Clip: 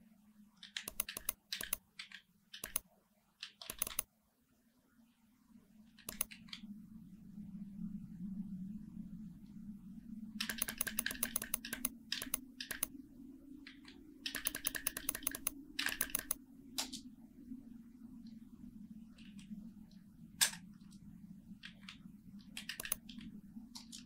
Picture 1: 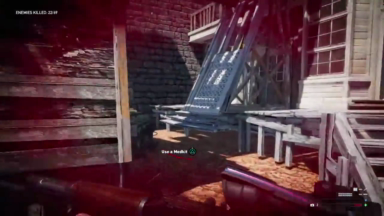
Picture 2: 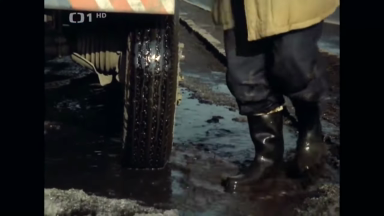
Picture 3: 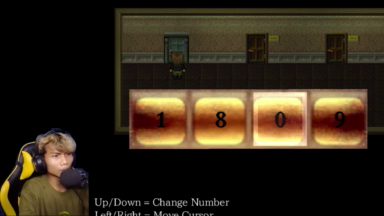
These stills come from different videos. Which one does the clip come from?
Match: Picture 3